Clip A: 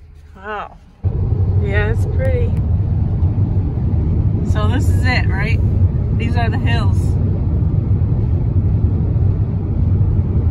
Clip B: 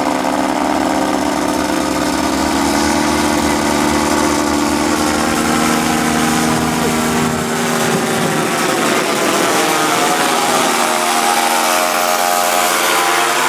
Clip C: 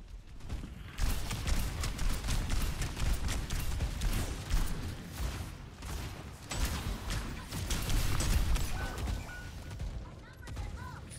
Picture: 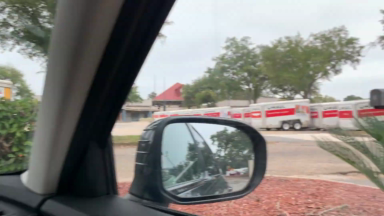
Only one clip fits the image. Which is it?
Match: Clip A